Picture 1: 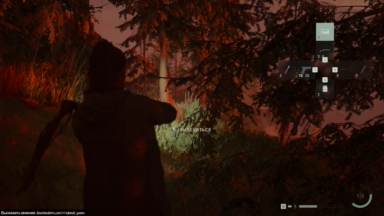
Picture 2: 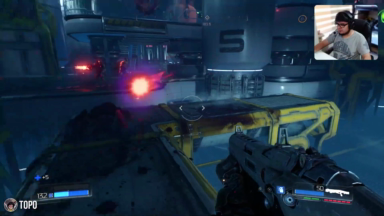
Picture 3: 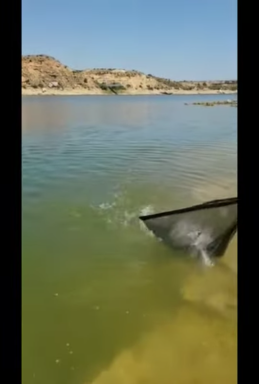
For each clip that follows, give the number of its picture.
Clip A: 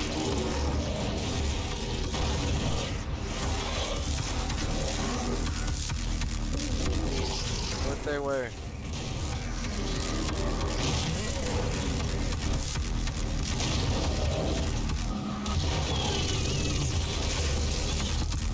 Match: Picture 2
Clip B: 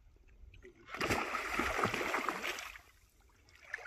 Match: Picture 3